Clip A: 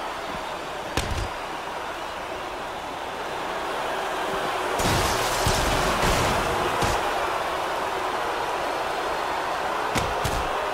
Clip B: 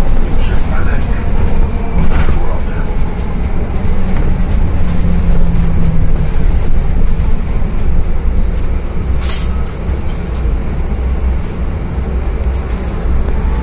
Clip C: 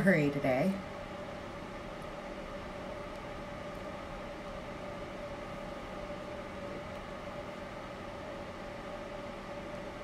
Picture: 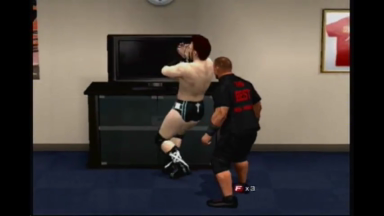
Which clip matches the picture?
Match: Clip A